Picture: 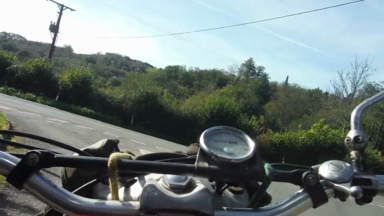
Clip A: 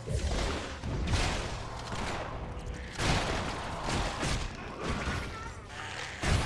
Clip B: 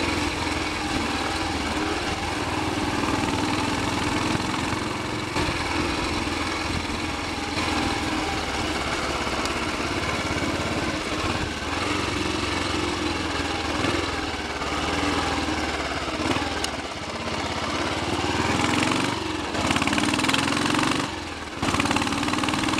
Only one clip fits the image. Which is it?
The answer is B